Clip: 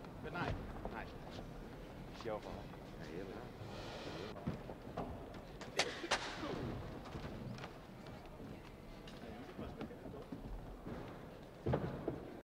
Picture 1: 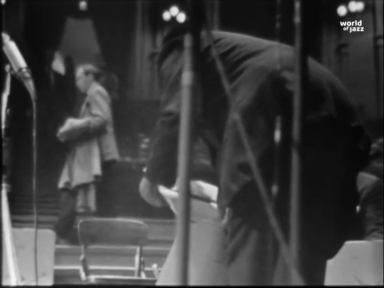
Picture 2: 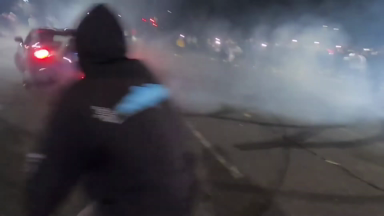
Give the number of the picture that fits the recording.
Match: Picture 1